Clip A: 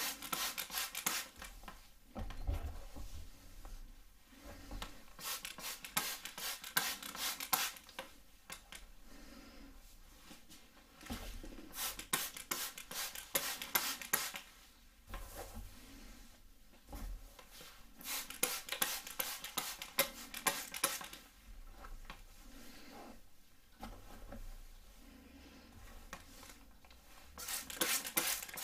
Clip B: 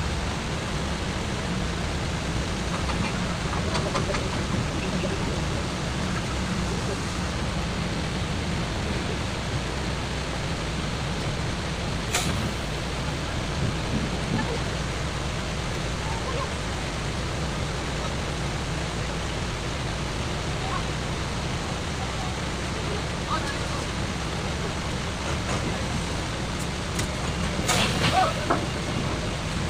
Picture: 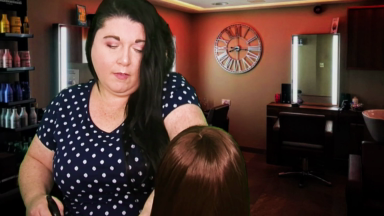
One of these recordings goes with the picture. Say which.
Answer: A